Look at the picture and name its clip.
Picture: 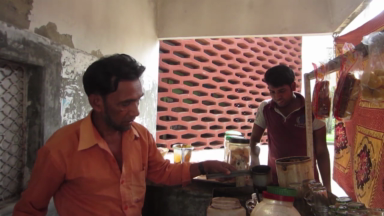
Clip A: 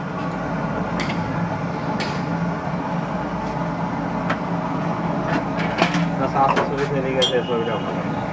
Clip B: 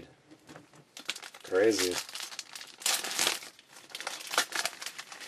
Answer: A